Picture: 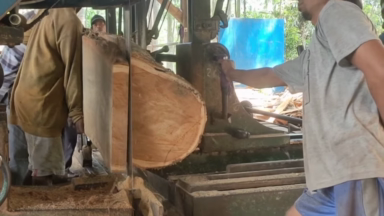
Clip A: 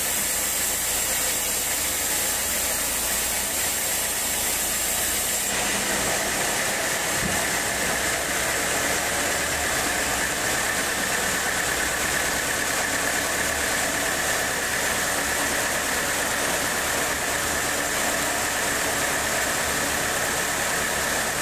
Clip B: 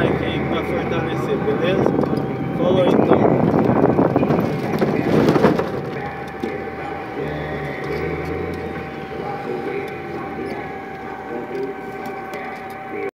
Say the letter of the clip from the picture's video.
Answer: A